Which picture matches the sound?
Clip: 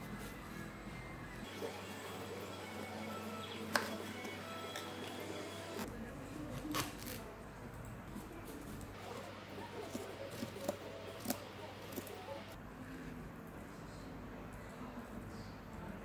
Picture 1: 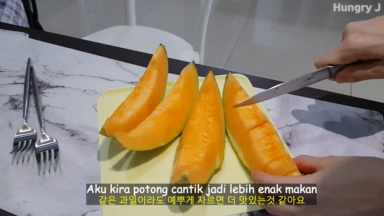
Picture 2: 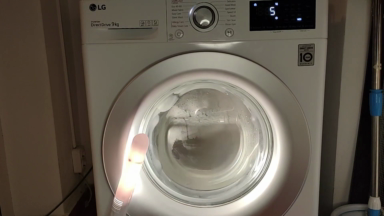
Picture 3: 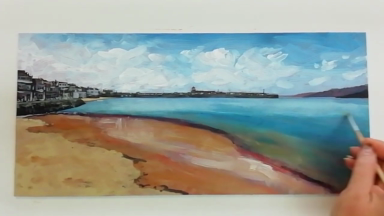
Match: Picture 1